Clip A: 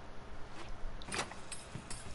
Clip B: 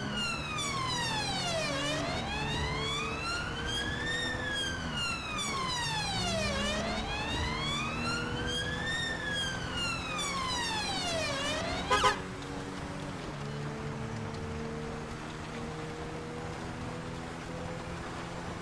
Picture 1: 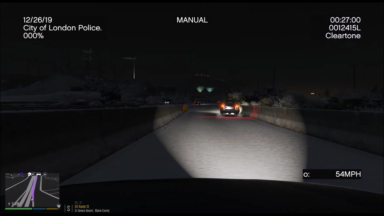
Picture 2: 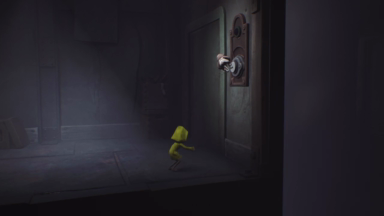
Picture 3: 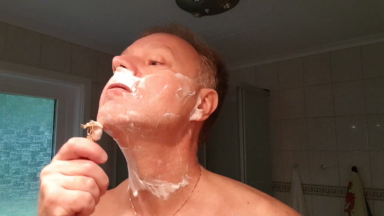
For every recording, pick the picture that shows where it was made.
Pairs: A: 2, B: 1